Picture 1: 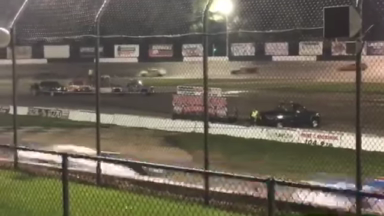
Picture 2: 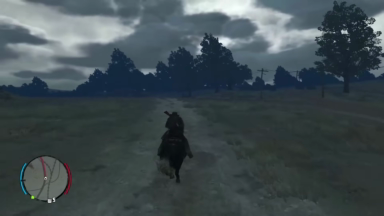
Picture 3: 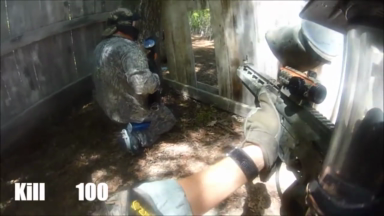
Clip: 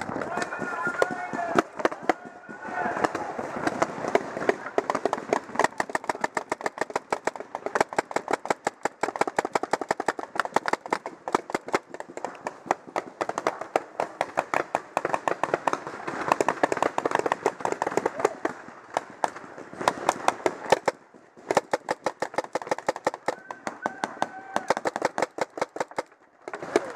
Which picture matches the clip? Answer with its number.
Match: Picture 3